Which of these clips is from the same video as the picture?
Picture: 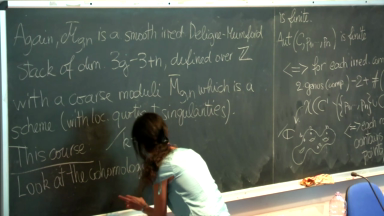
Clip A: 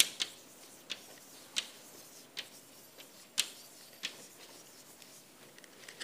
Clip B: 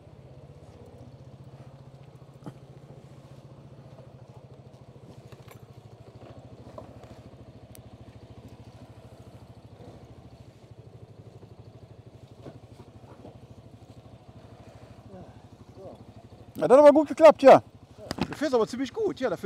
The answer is A